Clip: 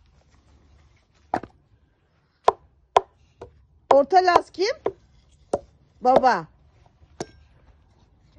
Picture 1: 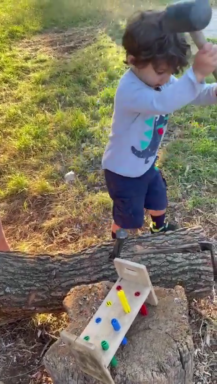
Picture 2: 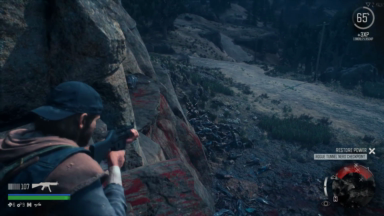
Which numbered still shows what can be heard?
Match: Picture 1